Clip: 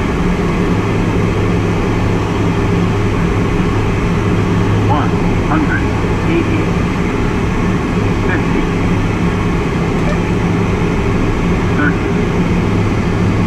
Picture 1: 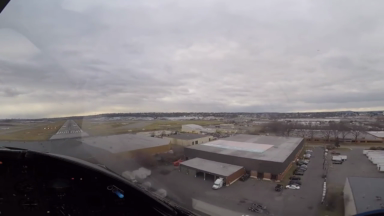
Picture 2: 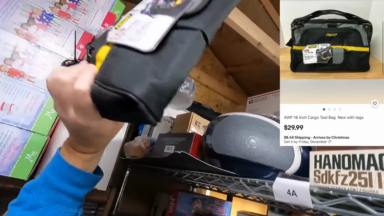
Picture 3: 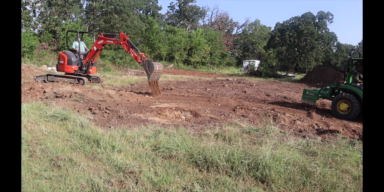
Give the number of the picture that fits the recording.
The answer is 1